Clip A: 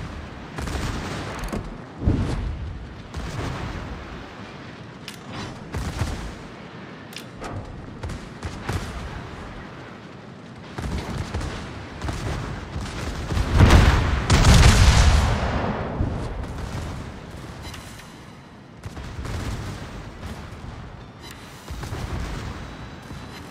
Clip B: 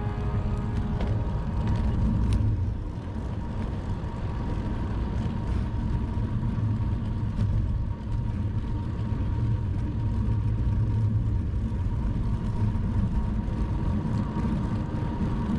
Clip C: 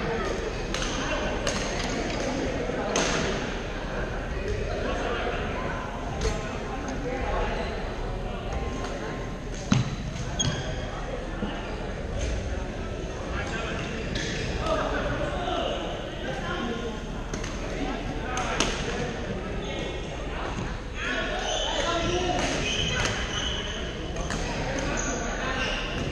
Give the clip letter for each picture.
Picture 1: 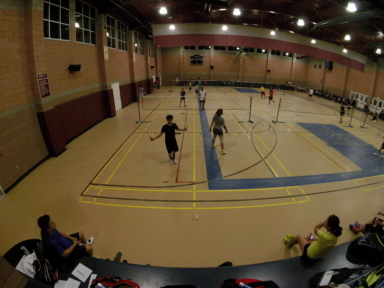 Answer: C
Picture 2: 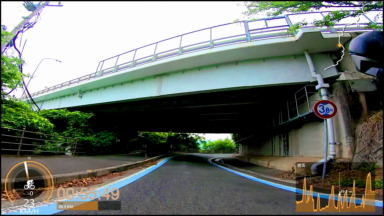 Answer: B